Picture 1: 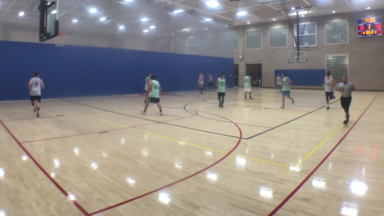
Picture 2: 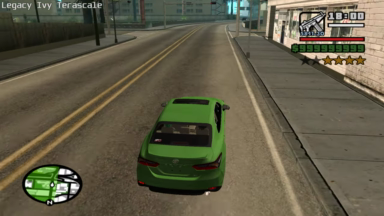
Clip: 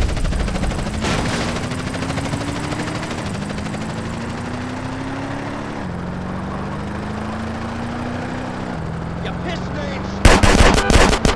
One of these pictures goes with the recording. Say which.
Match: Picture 2